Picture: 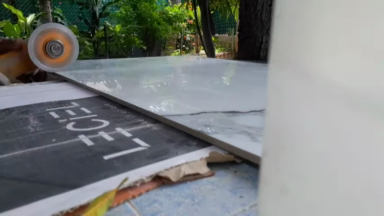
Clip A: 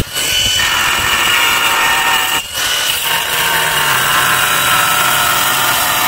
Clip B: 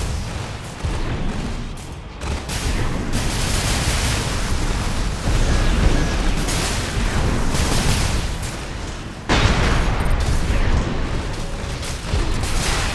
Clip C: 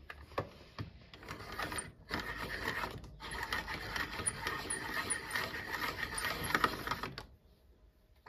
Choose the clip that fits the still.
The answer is A